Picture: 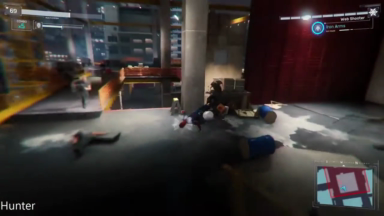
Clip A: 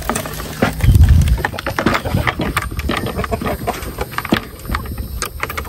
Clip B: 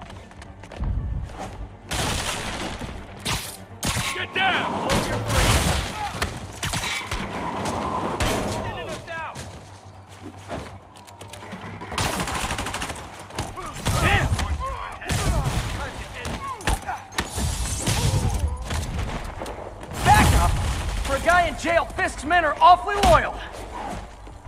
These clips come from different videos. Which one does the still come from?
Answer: B